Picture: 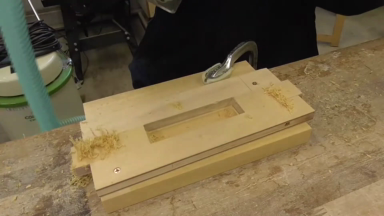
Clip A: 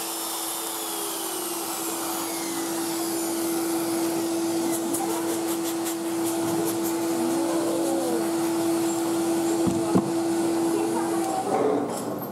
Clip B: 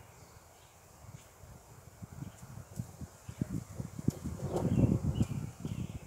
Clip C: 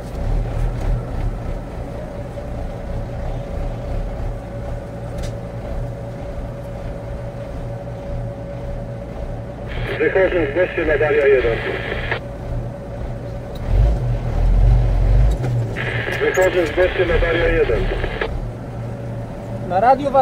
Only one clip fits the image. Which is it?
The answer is A